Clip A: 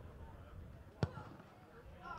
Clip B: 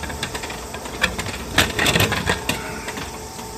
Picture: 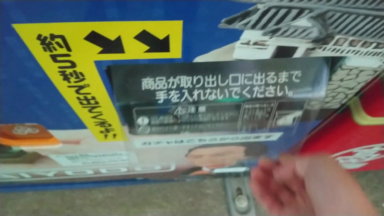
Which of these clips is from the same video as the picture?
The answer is B